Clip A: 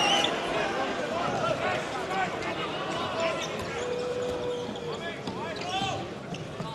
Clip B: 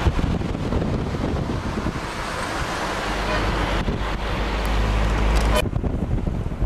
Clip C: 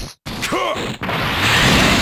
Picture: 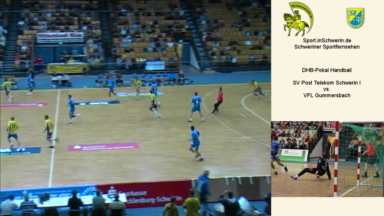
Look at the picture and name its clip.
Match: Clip A